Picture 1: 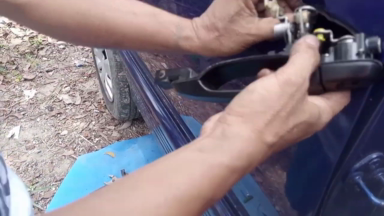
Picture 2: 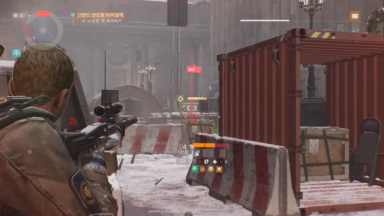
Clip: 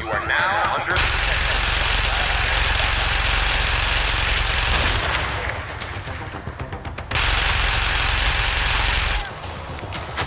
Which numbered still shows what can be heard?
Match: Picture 2